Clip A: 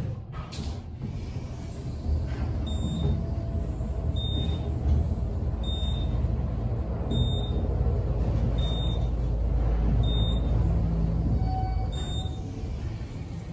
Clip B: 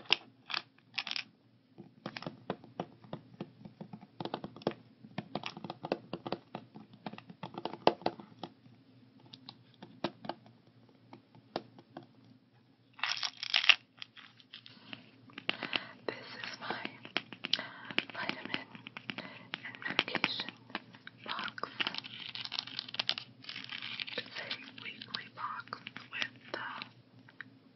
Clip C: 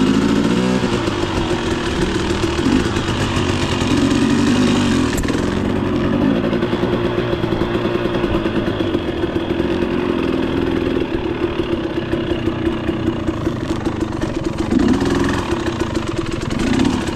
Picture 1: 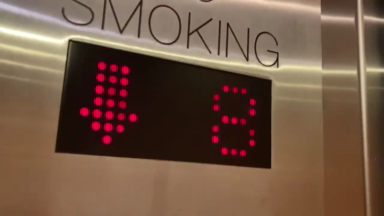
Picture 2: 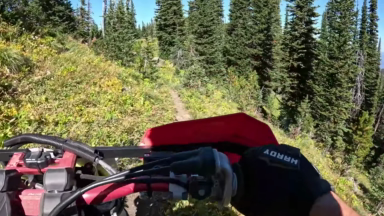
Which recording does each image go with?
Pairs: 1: A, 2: C